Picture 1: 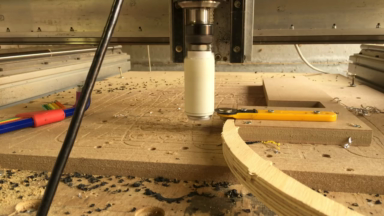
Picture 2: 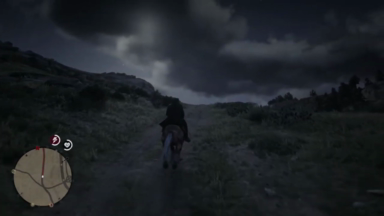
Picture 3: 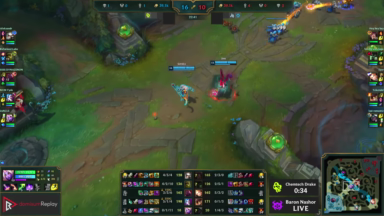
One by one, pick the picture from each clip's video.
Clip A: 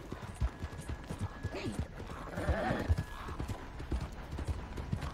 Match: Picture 2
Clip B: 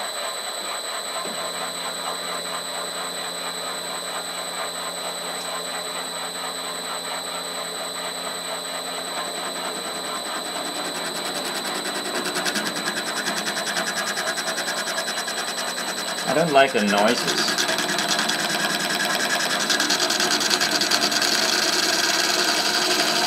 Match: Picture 1